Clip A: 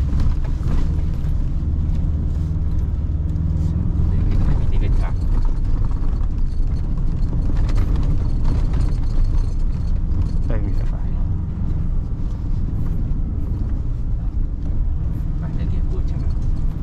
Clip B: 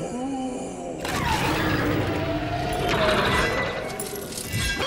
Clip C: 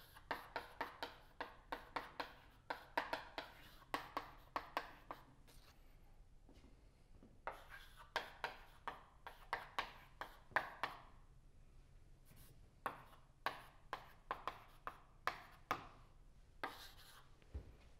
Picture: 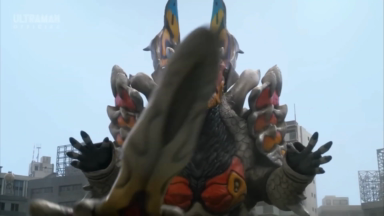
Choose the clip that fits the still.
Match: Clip B